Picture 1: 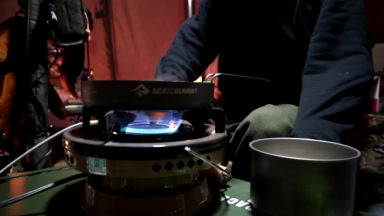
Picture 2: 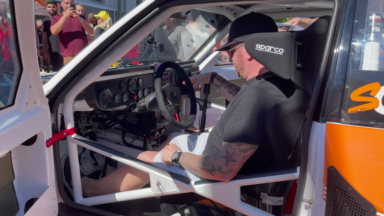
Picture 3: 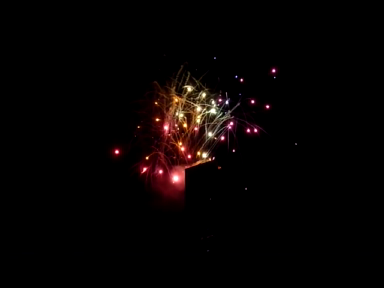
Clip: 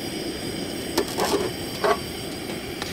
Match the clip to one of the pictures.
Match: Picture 1